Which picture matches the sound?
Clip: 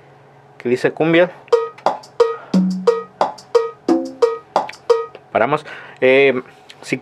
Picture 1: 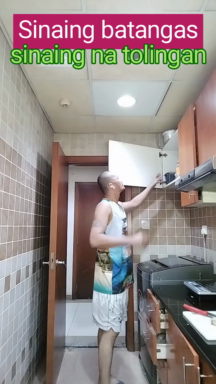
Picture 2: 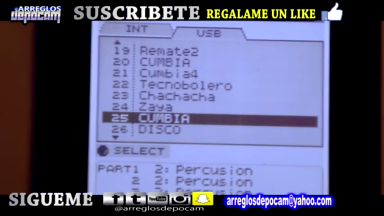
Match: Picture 2